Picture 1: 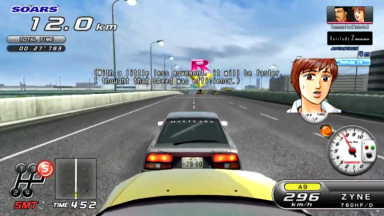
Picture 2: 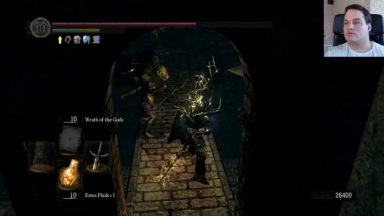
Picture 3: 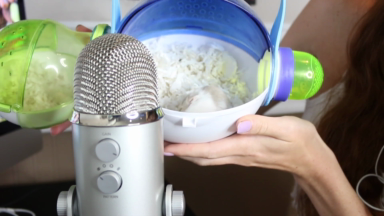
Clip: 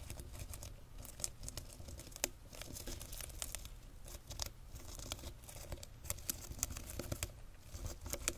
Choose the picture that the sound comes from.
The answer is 3